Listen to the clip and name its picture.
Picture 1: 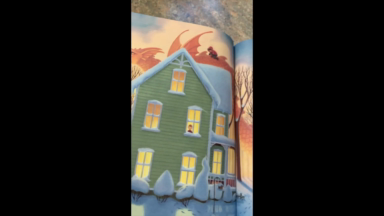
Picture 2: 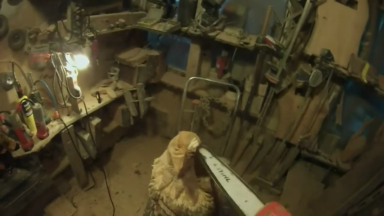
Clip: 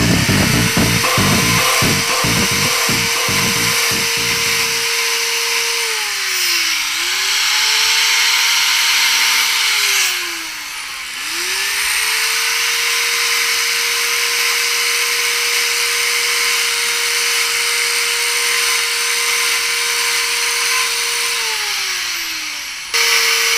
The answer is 2